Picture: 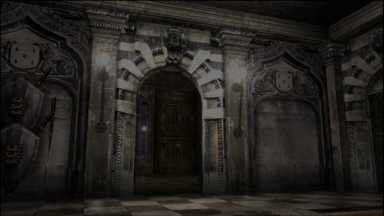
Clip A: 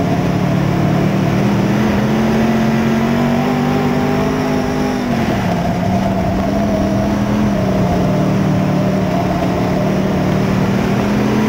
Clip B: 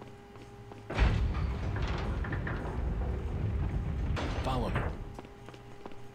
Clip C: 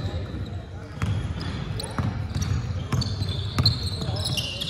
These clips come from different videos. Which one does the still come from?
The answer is B